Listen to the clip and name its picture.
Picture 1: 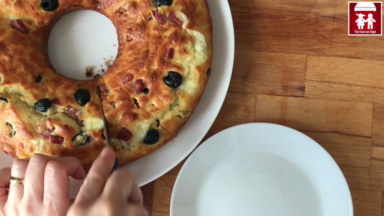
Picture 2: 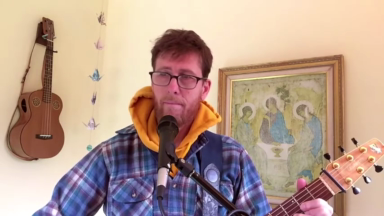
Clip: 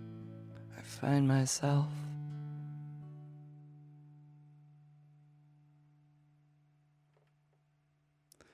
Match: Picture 2